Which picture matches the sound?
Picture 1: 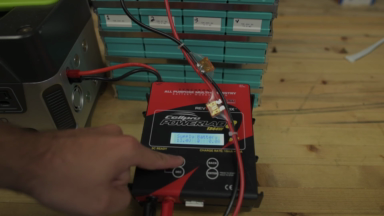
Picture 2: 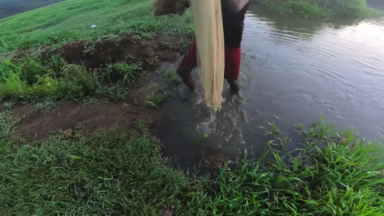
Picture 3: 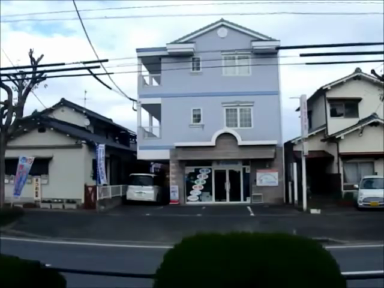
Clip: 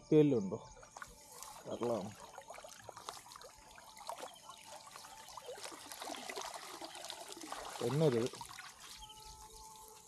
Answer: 2